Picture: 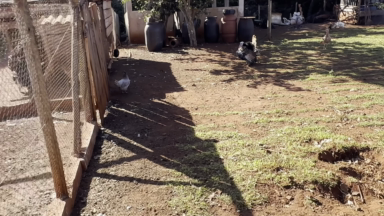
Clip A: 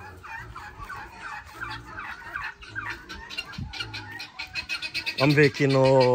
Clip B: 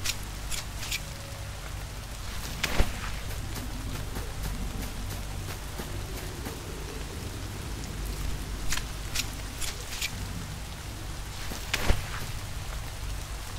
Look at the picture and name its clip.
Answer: A